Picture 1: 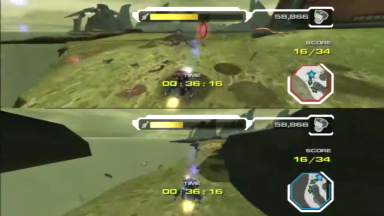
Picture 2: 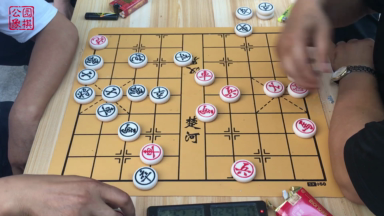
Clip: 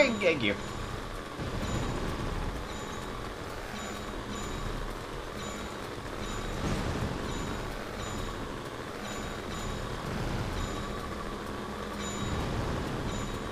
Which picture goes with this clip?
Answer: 1